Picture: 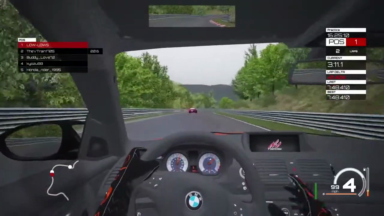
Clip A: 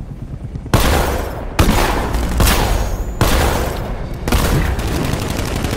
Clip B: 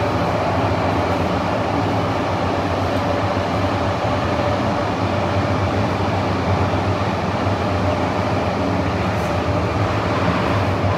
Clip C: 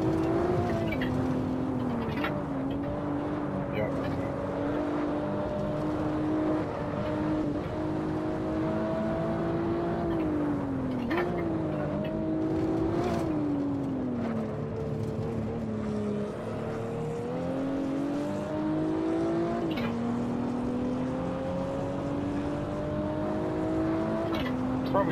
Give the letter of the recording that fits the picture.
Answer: C